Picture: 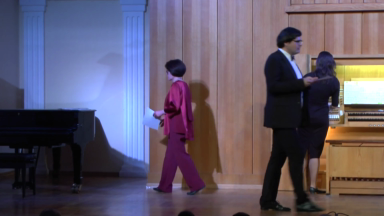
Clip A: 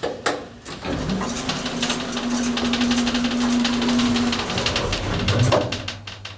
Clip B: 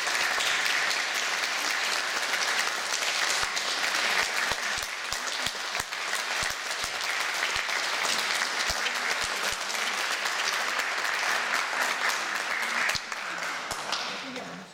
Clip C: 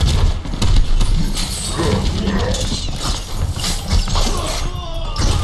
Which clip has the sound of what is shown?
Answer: B